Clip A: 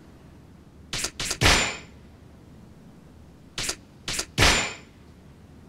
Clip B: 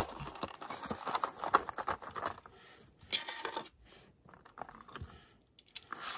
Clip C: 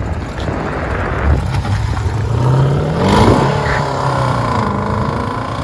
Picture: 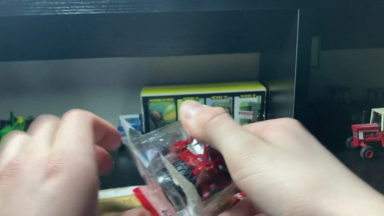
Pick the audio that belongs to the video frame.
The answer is B